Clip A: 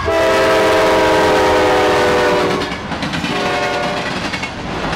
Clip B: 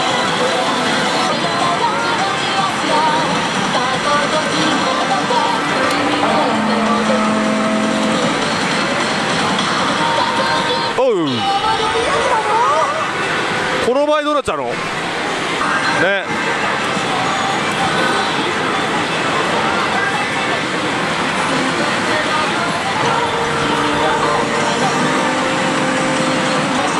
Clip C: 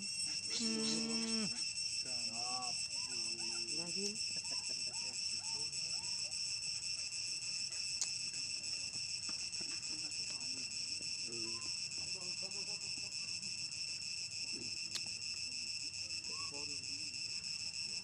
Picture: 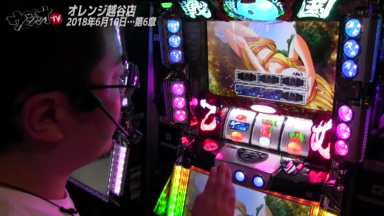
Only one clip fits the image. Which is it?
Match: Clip B